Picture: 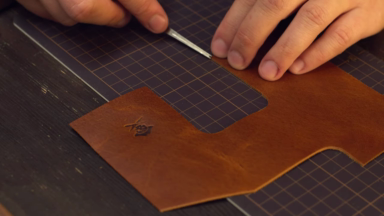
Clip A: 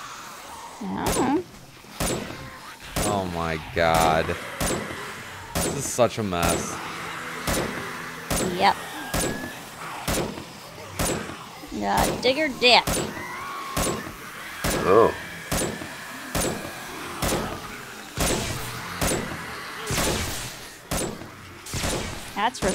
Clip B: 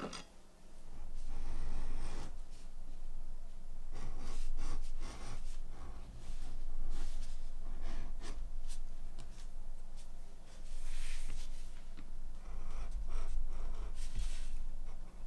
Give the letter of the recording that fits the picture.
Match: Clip B